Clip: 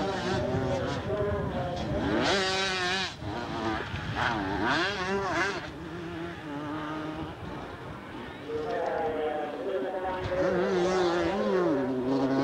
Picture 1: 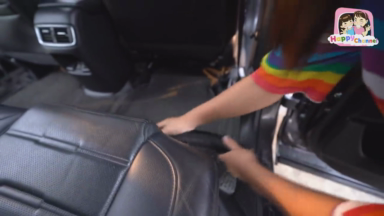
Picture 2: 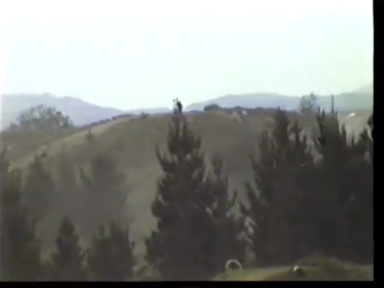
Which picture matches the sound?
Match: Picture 2